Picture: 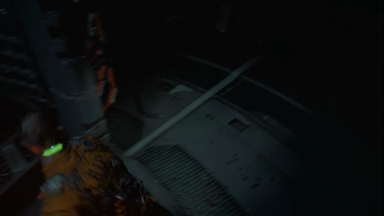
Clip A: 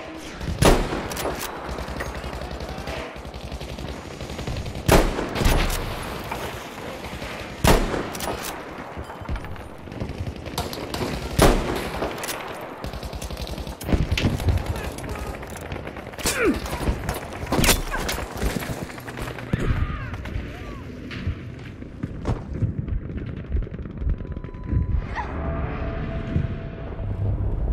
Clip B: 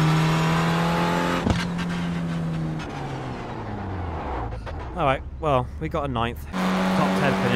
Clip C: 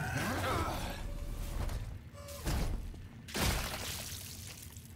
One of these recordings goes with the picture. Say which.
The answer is C